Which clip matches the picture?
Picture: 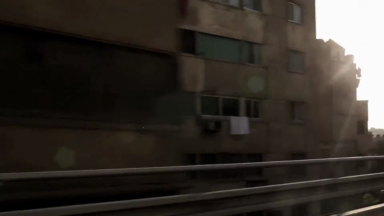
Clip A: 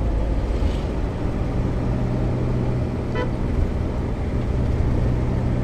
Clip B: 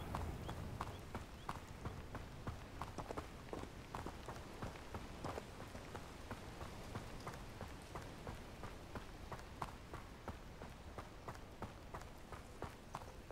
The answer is A